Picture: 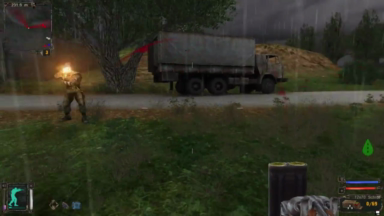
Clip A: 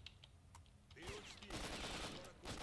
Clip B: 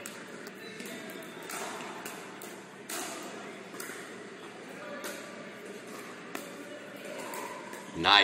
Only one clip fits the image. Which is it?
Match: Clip A